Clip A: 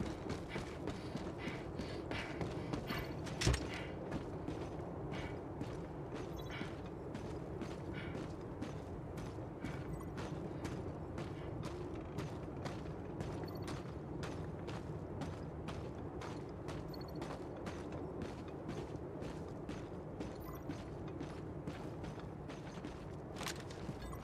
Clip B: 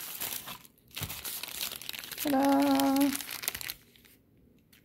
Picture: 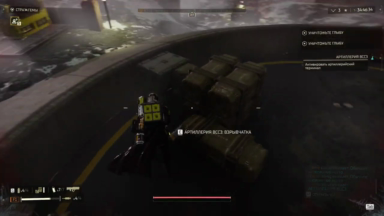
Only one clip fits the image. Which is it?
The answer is A